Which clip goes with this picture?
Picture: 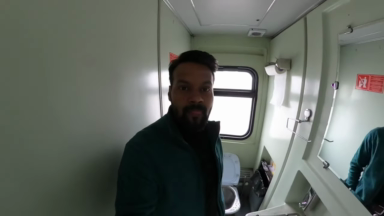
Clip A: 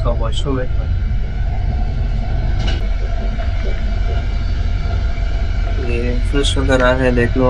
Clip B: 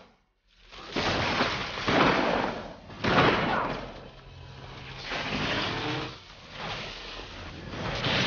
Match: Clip A